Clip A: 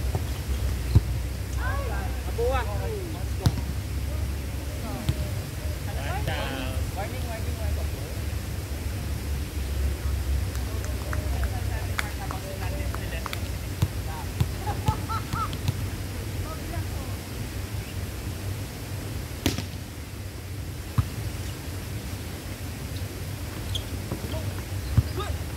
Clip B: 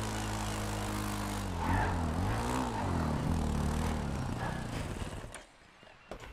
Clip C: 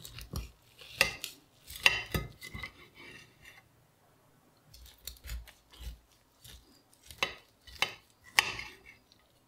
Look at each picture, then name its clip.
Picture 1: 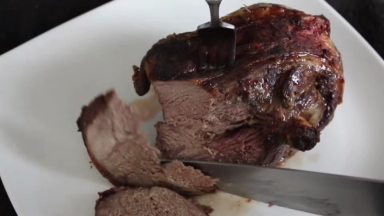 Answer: C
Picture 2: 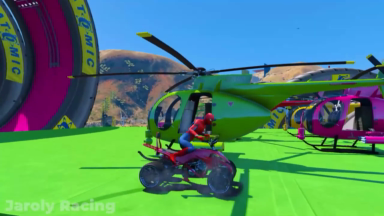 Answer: B